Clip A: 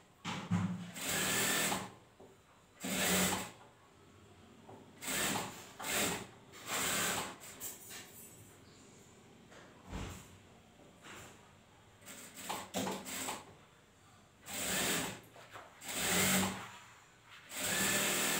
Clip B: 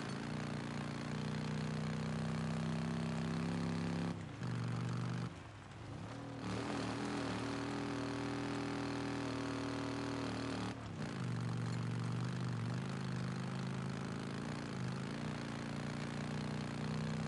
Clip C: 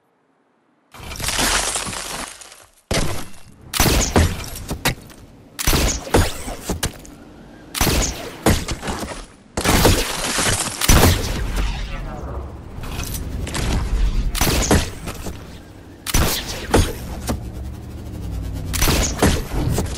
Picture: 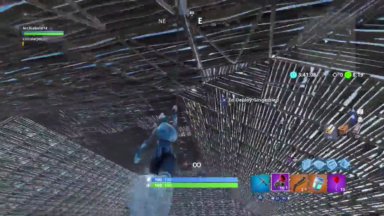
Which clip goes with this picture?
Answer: C